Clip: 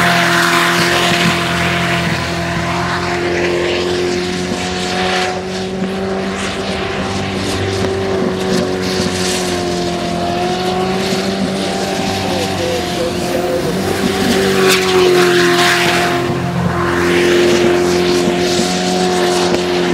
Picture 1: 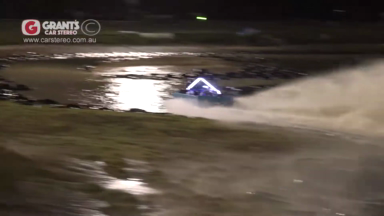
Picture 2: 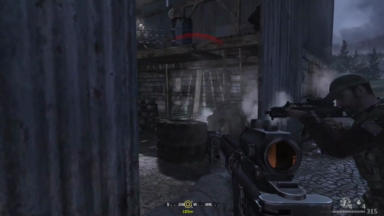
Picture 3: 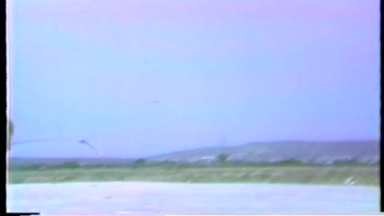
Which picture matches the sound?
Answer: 1